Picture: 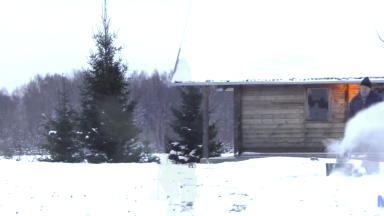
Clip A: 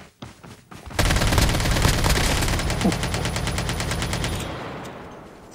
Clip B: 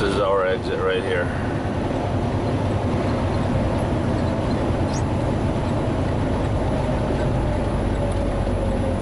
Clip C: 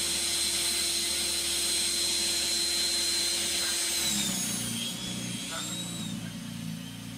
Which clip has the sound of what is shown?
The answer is C